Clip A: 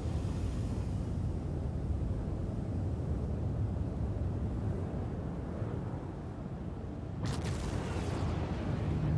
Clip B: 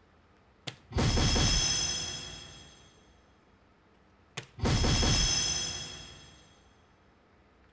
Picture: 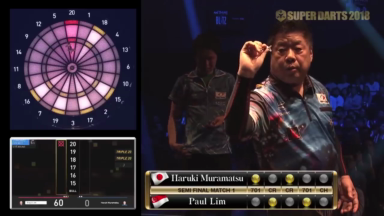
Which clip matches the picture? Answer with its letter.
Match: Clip B